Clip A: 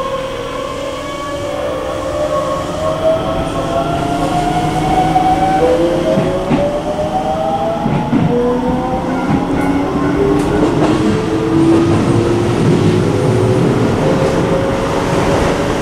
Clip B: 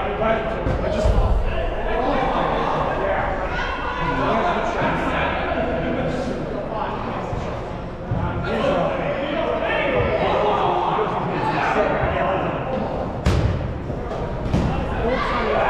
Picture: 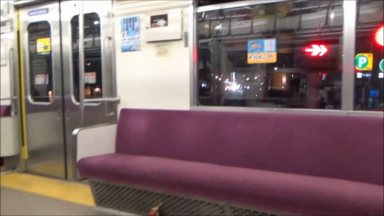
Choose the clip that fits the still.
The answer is A